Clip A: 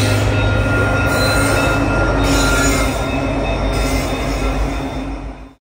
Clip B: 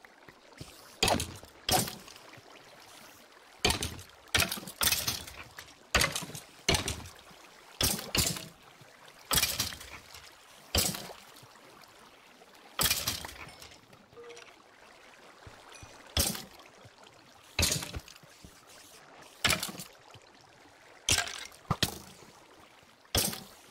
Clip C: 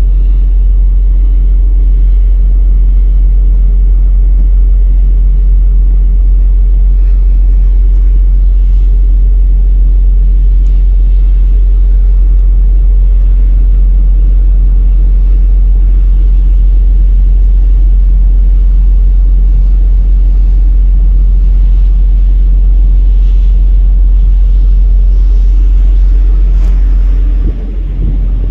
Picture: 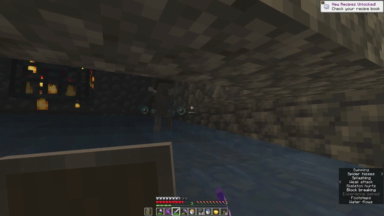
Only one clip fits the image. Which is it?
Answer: B